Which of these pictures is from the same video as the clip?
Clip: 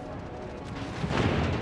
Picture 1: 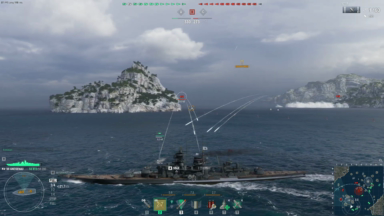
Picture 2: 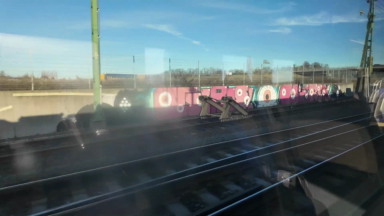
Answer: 1